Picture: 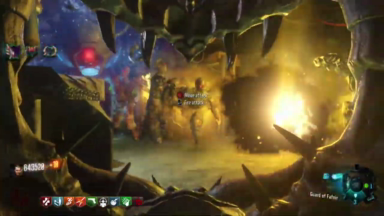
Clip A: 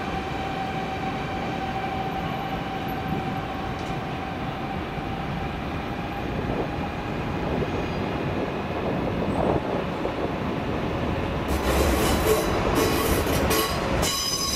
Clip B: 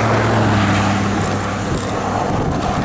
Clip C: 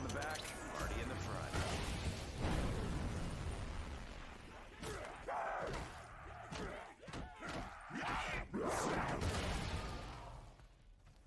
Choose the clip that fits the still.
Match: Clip C